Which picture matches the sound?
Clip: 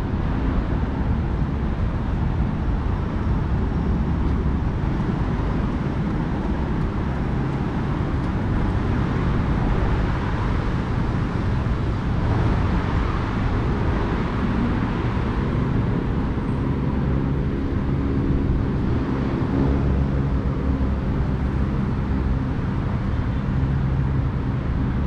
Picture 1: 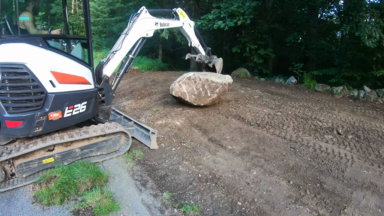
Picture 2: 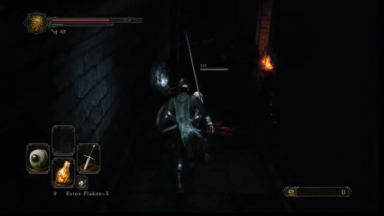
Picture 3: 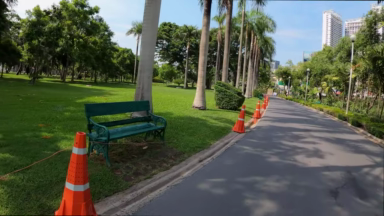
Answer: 3